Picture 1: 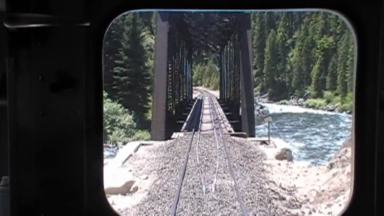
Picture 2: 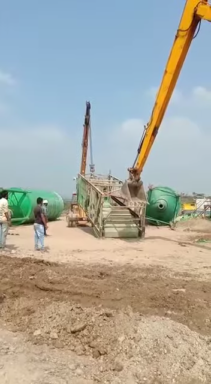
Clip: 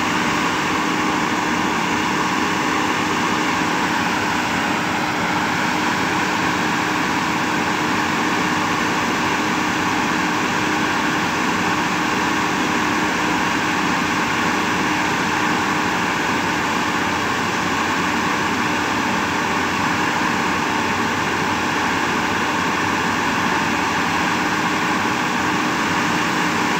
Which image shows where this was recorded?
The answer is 2